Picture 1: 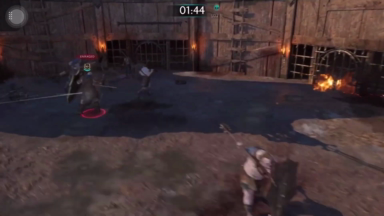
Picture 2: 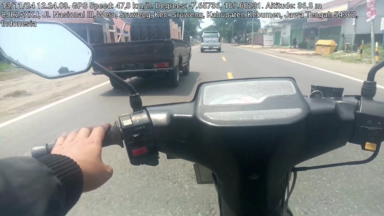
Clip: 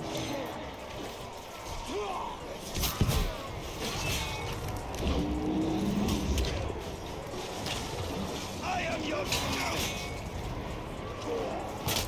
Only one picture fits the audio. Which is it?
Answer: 1